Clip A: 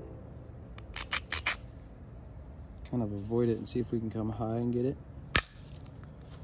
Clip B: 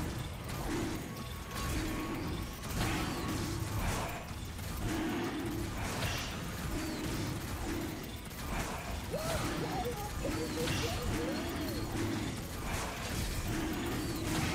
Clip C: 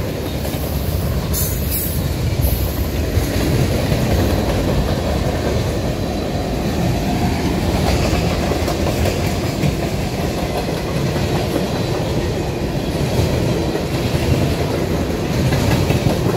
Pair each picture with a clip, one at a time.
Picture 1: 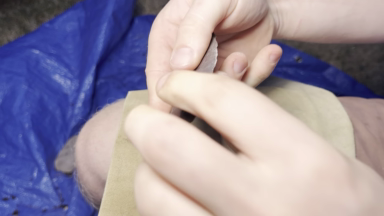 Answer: A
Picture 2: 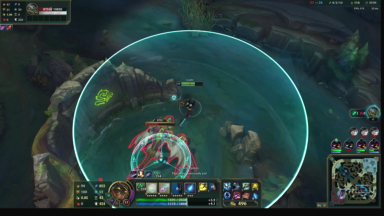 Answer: B